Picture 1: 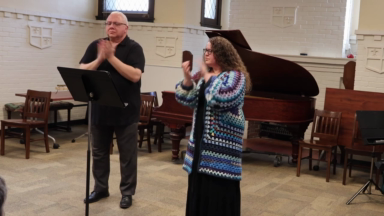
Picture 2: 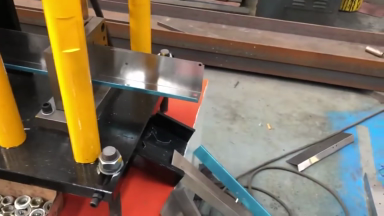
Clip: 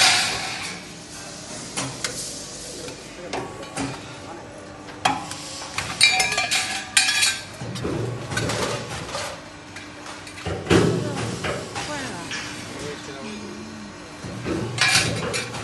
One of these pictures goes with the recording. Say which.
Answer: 2